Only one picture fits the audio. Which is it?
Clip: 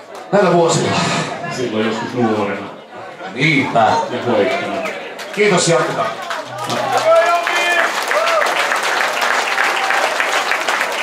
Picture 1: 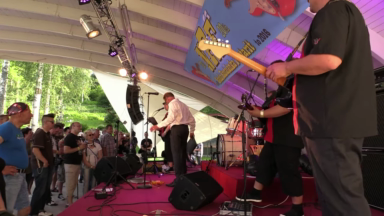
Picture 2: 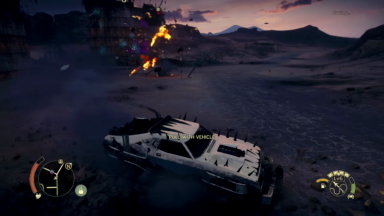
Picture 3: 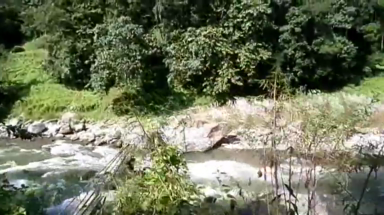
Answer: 1